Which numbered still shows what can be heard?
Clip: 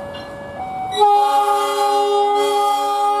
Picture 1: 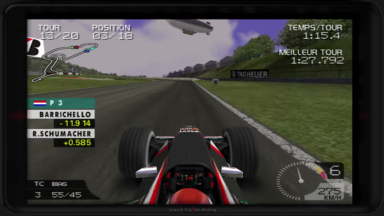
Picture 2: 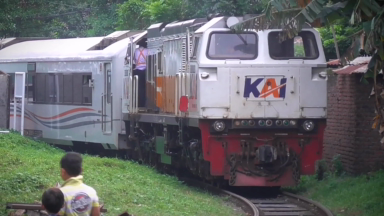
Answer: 2